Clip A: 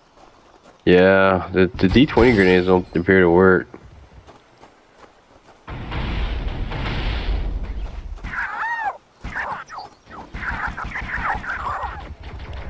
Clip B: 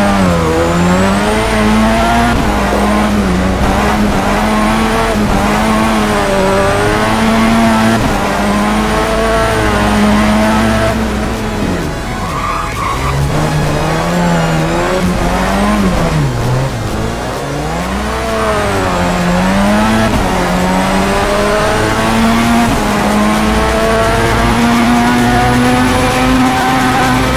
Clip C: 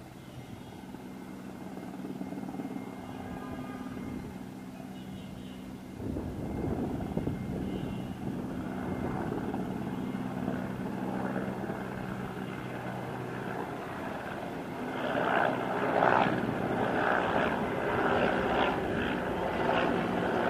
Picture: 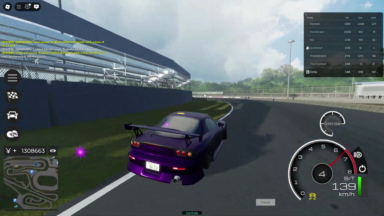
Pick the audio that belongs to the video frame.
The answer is B